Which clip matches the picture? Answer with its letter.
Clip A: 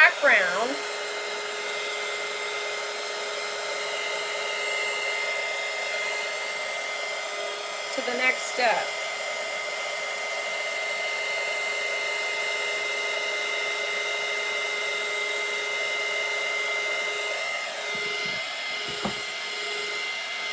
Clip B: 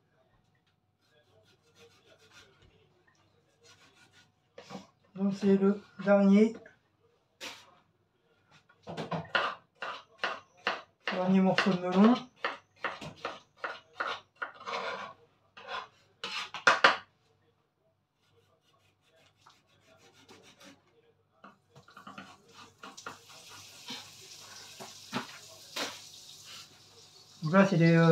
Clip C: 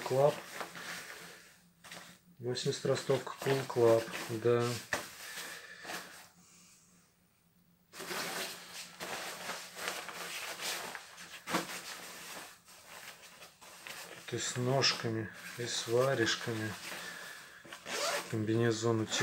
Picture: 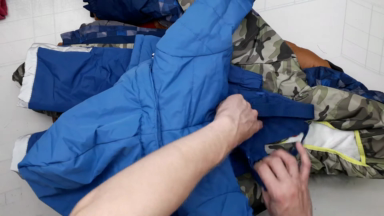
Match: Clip C